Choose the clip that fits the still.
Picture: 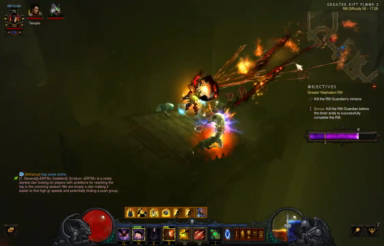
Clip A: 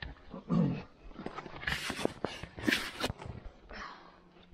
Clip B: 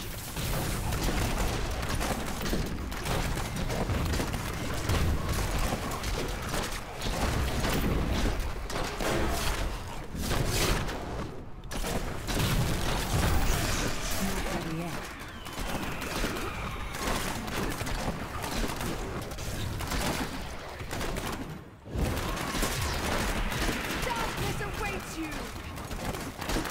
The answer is B